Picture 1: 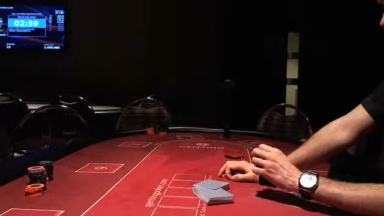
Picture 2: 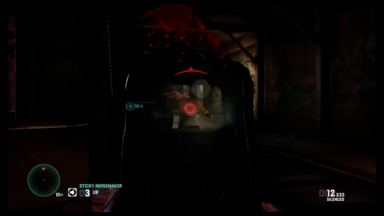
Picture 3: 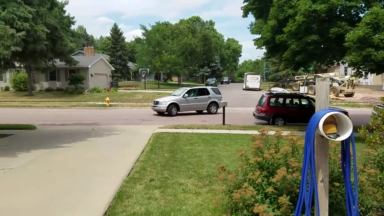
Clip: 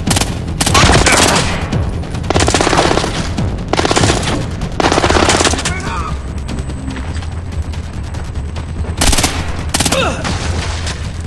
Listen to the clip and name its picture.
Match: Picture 2